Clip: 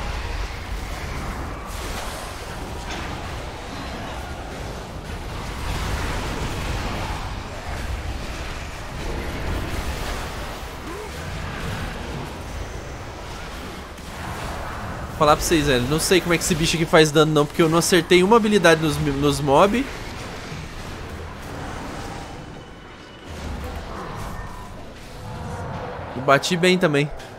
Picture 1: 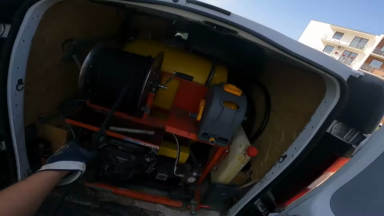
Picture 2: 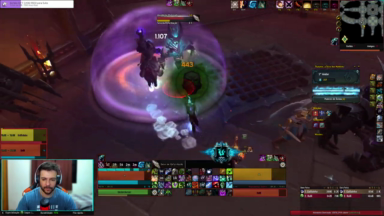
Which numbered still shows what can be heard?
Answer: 2